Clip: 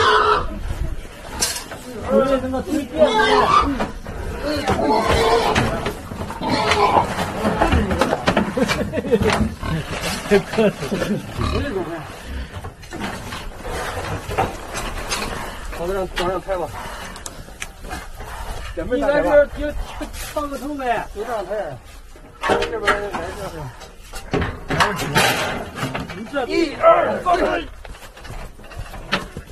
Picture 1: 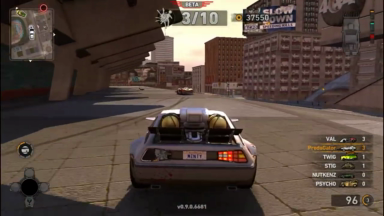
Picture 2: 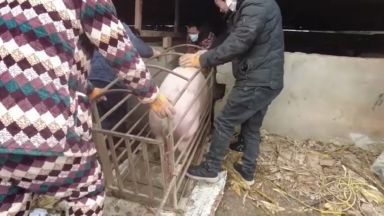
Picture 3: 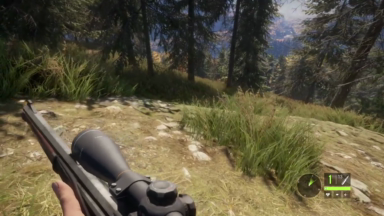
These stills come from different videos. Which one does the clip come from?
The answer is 2